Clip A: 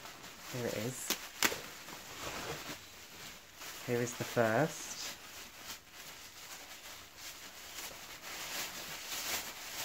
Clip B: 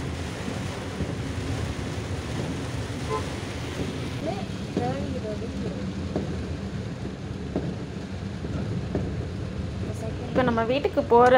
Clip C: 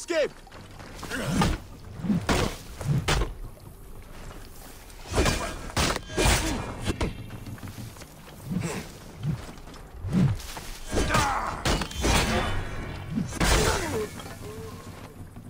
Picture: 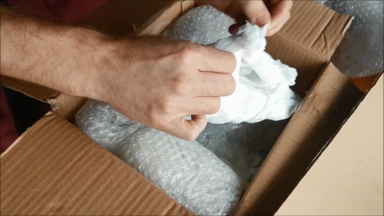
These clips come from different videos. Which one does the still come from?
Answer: A